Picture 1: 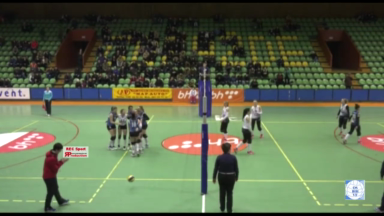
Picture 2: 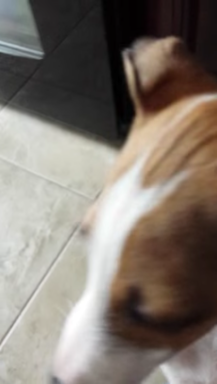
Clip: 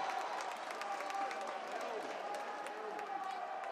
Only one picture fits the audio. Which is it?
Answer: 1